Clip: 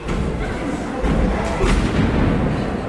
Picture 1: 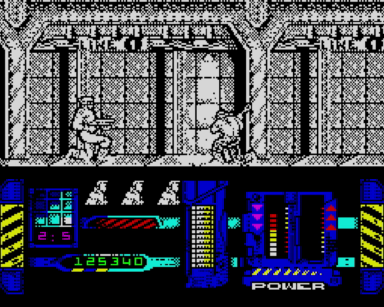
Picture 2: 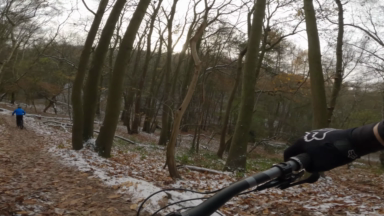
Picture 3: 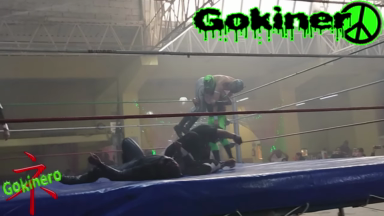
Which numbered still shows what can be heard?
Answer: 3